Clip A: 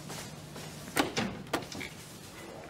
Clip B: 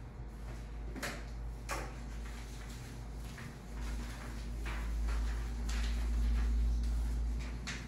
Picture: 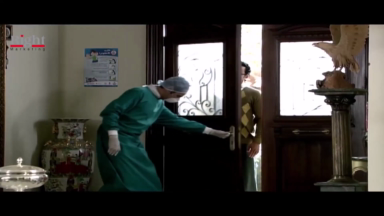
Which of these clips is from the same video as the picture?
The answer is A